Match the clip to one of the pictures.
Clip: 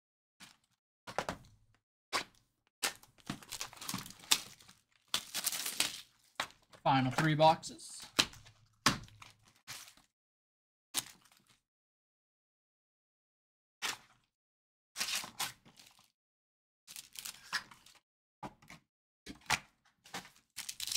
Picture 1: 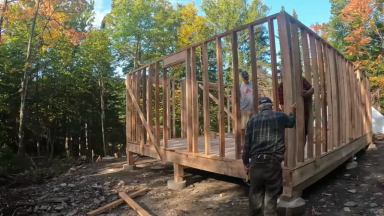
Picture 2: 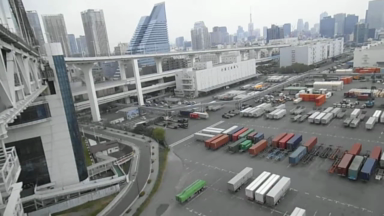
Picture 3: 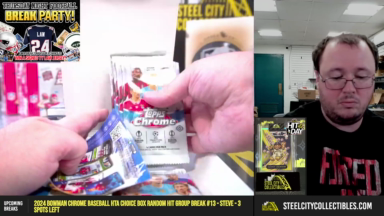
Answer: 3